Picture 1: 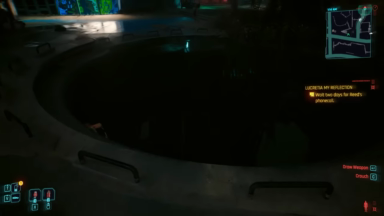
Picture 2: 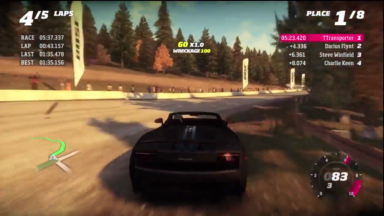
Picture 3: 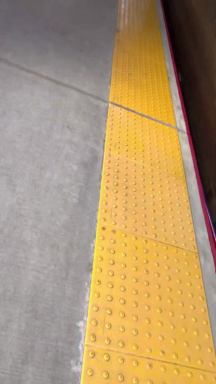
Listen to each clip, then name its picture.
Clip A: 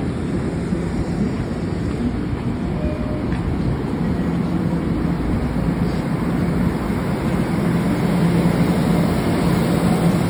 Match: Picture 3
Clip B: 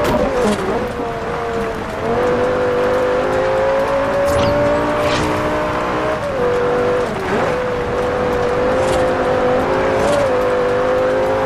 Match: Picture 2